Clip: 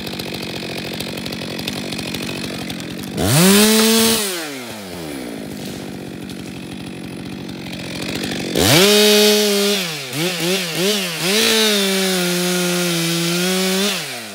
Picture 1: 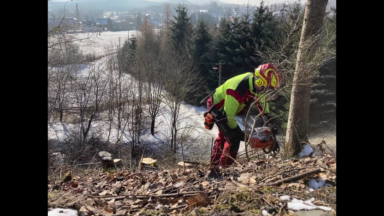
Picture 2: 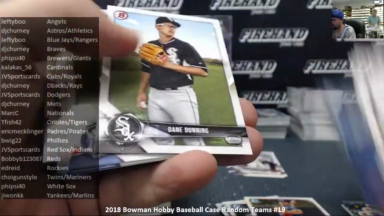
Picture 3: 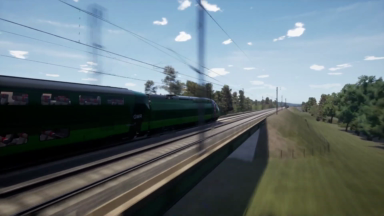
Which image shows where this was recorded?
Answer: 1